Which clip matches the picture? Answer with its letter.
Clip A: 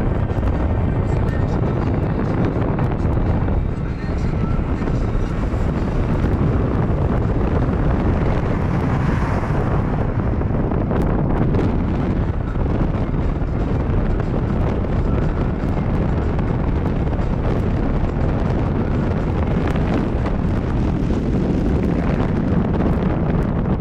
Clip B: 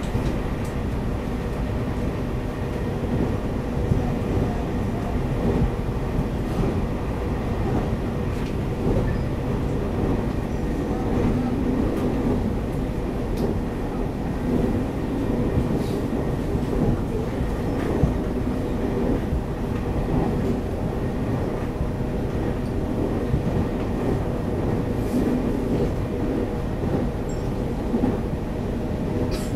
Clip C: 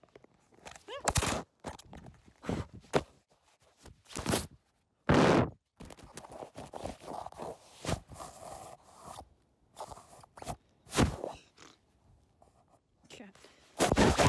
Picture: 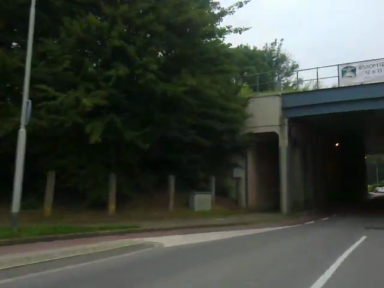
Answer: A